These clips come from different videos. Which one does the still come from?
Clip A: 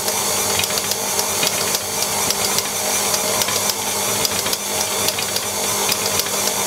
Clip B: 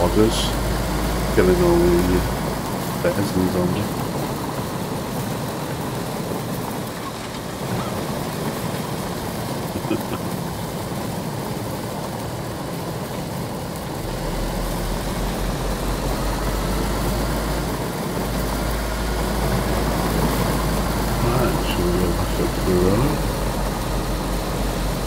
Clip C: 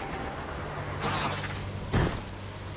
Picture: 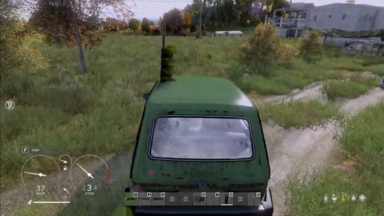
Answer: B